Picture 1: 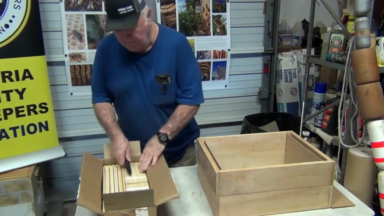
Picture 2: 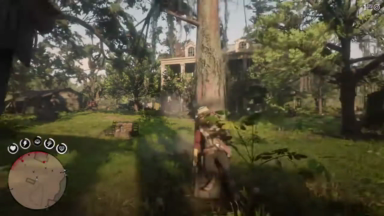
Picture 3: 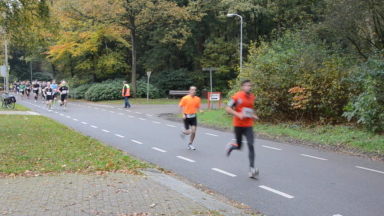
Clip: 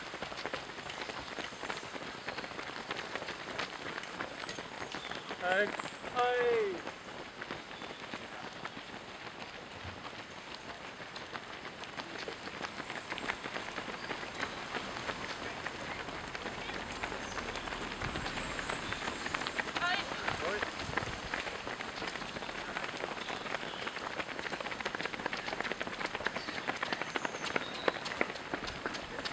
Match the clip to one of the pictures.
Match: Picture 3